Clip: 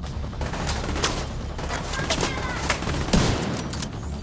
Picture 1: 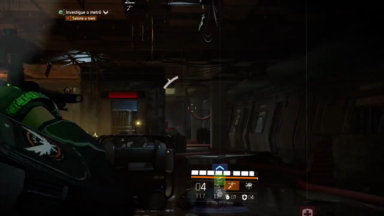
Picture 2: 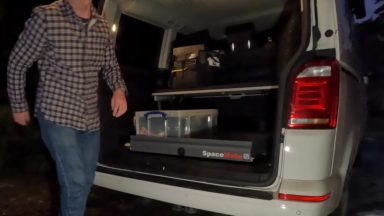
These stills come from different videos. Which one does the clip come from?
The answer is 1